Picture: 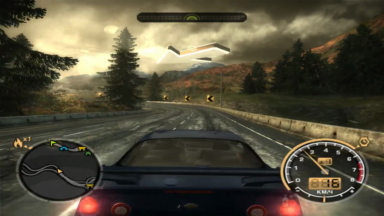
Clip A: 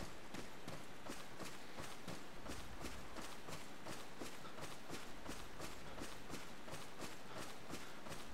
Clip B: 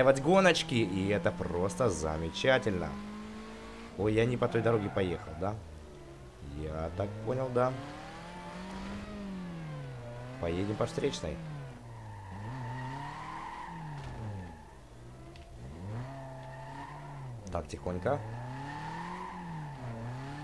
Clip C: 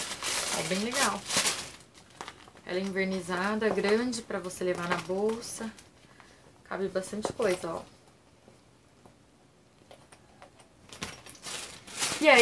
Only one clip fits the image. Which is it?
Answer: B